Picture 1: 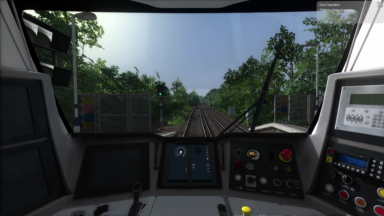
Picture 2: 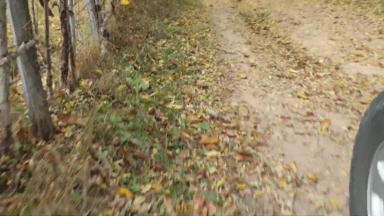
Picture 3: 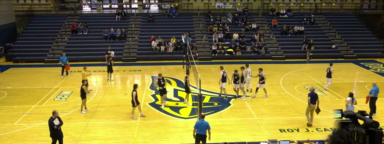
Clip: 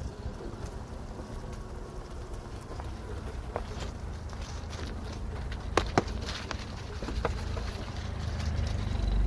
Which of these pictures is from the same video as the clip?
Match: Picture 2